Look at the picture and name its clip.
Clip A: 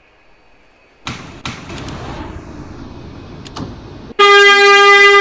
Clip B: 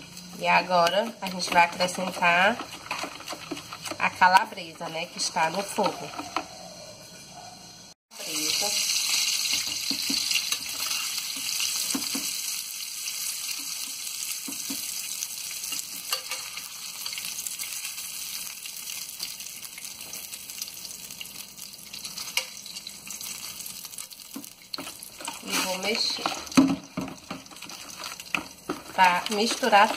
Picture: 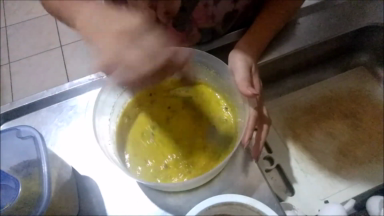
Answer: B